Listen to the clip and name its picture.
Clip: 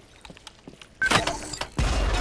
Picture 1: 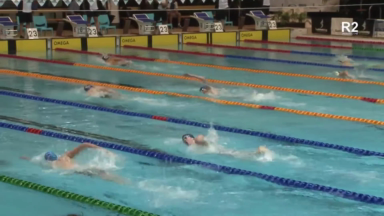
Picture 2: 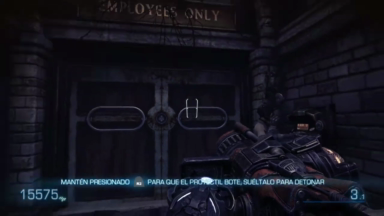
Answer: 2